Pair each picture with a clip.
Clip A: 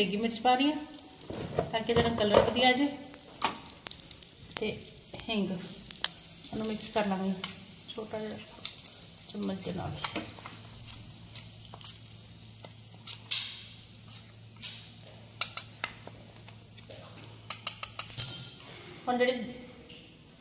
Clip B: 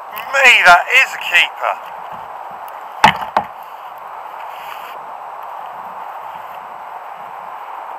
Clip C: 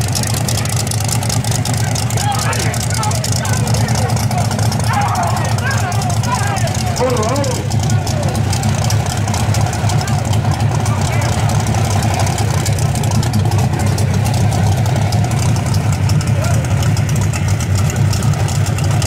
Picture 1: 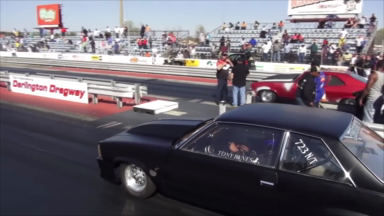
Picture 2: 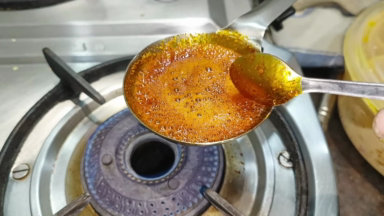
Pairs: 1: C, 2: A